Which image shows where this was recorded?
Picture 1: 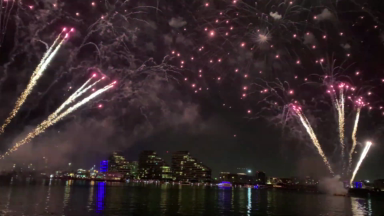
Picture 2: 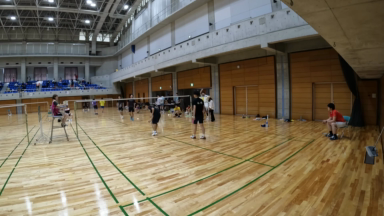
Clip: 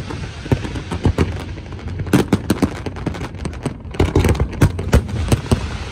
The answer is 1